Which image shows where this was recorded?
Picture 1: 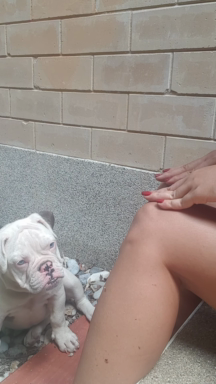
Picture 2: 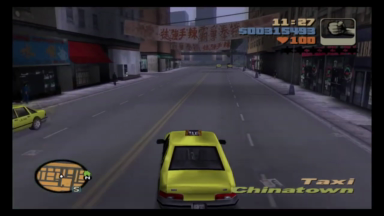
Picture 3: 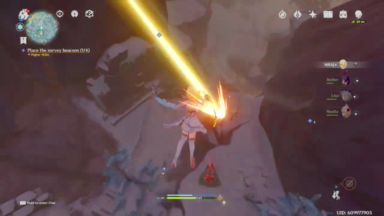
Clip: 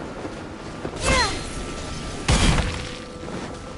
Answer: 3